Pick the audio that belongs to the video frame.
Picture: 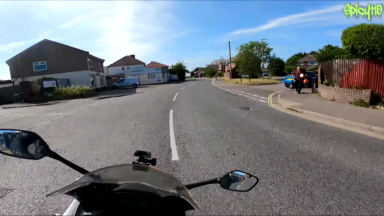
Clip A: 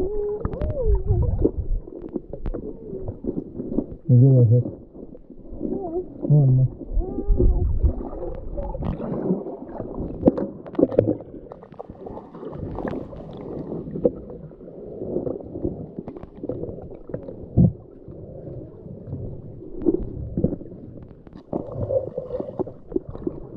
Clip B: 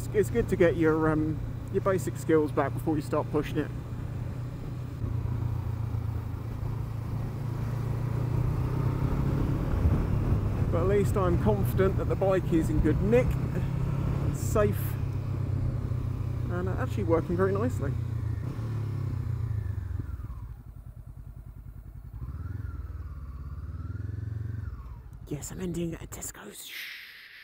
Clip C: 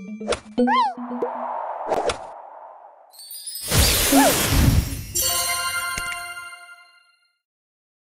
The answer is B